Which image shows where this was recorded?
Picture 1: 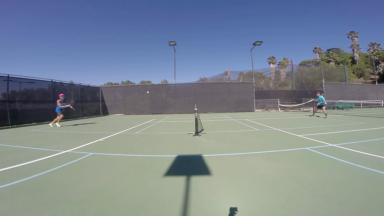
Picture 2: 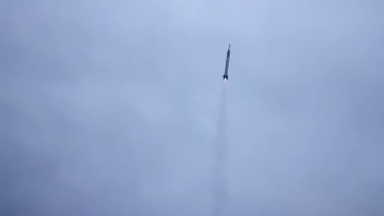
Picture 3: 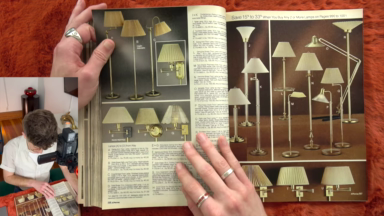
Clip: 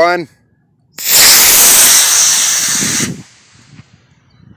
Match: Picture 2